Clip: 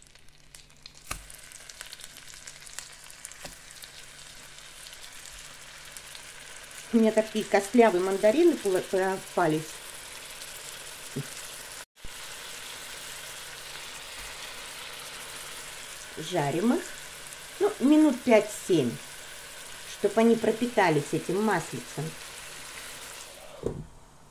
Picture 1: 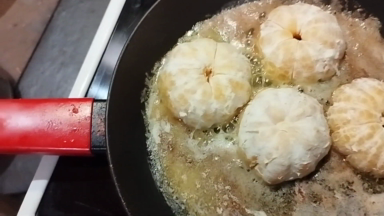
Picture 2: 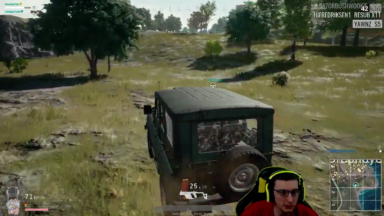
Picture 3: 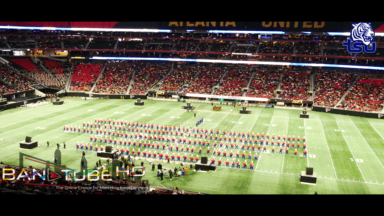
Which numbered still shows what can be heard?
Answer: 1